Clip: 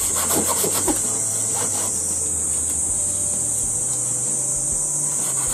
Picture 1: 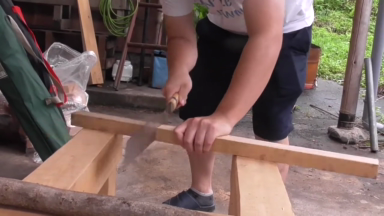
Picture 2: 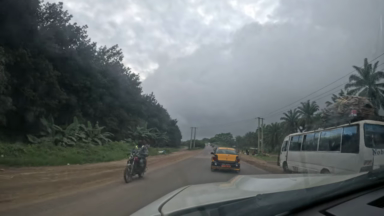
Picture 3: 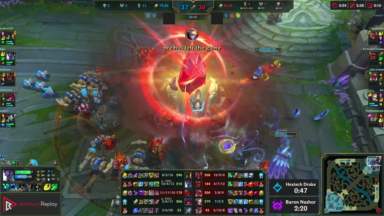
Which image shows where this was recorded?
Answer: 1